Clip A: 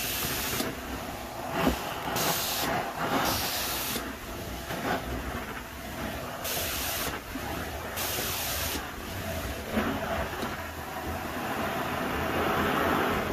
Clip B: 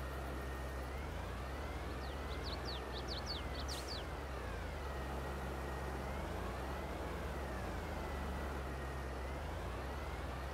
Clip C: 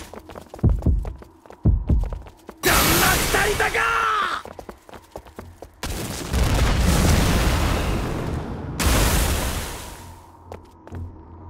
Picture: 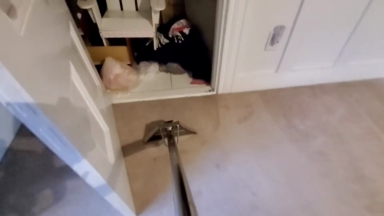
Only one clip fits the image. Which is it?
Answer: A